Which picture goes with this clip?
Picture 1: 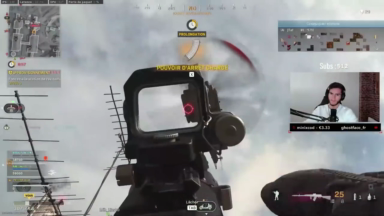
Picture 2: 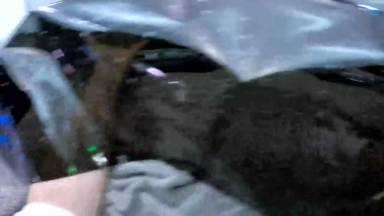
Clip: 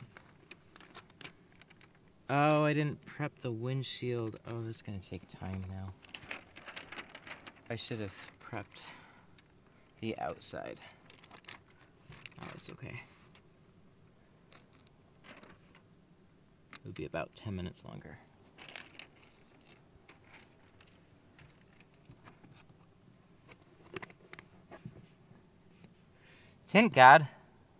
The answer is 2